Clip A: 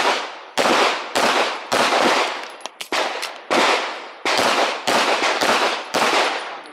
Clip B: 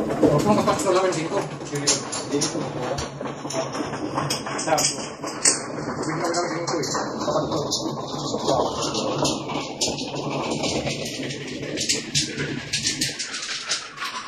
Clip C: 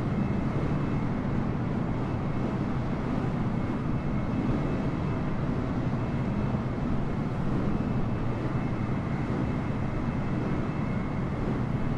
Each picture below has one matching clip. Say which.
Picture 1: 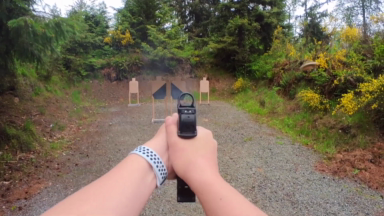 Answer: A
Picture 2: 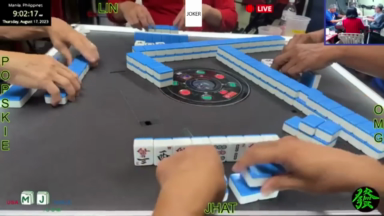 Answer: B